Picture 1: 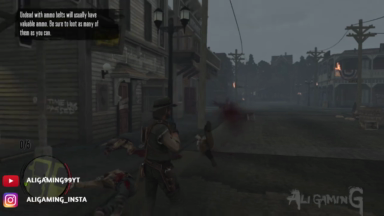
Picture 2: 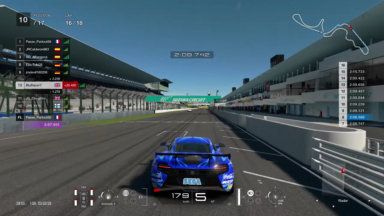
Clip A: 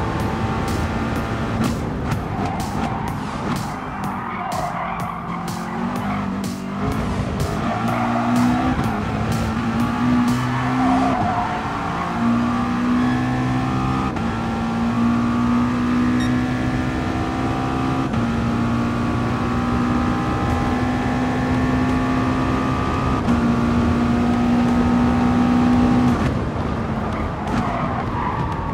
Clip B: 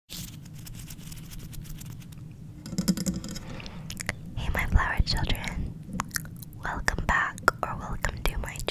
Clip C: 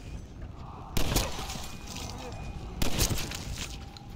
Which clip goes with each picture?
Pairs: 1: C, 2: A